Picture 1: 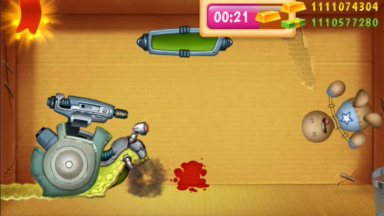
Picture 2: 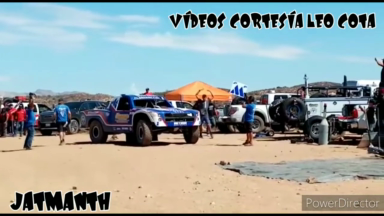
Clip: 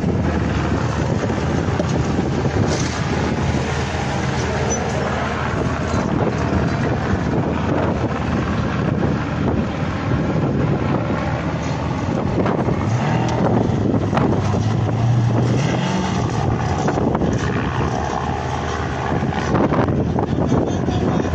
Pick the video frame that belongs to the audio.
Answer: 2